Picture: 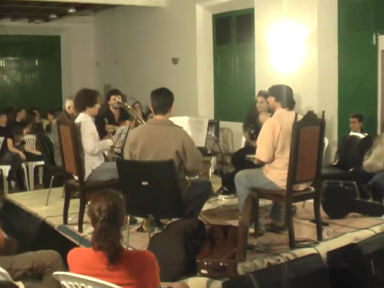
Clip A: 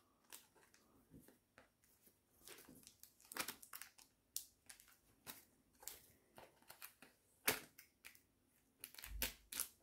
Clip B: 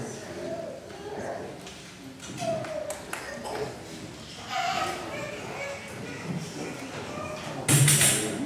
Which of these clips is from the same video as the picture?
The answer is B